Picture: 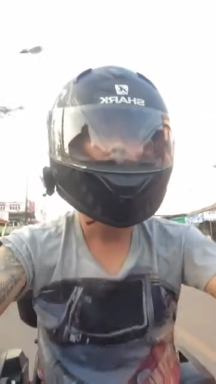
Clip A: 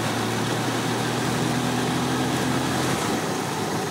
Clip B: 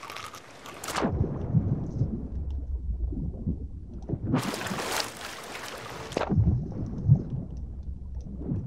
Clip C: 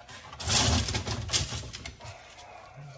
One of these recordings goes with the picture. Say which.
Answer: A